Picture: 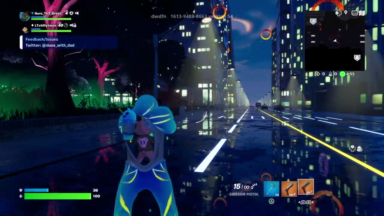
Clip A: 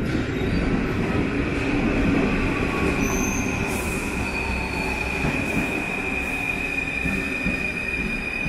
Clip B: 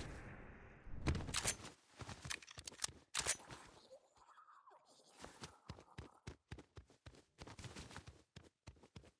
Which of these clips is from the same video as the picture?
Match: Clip B